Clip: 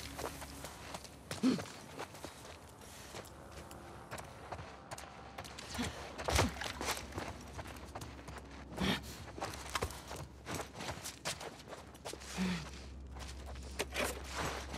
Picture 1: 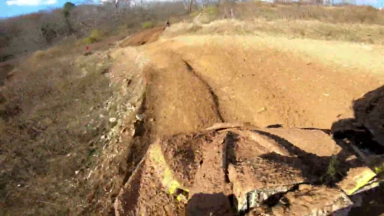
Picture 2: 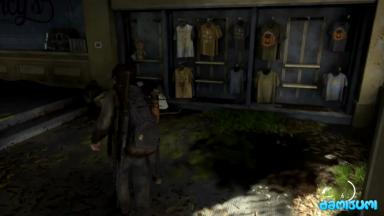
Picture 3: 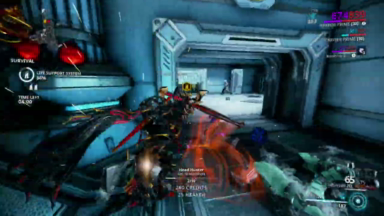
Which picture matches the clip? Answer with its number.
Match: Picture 2